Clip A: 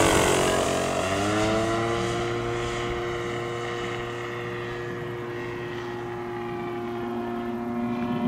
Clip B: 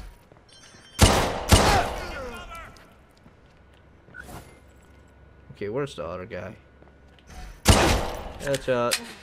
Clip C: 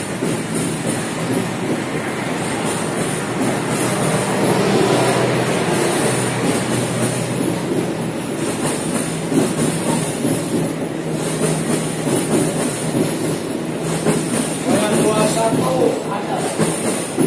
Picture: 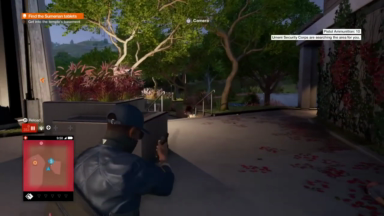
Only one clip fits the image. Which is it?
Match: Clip B